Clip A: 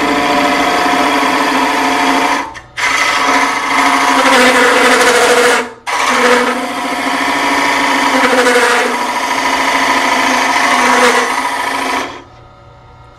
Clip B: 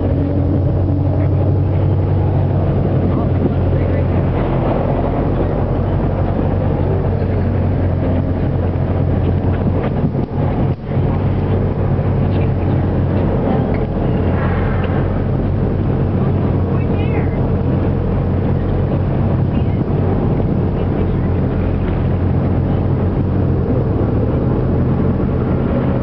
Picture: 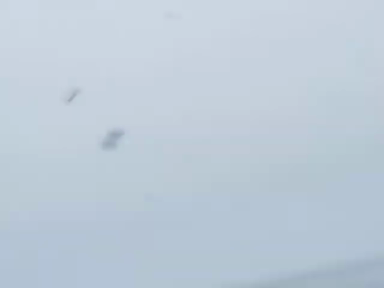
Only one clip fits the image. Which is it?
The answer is B